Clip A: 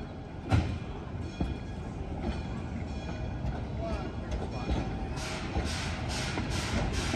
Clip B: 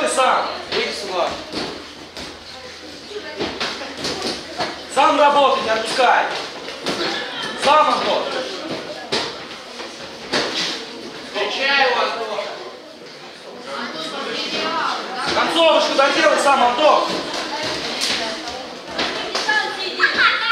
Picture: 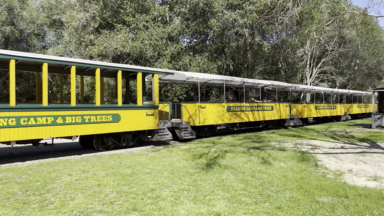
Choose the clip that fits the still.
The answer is A